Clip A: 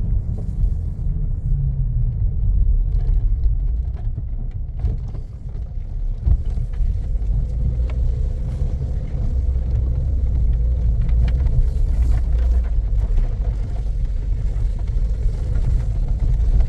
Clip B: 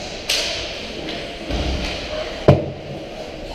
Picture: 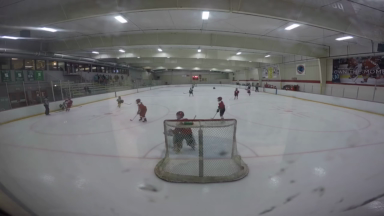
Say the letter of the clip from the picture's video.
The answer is B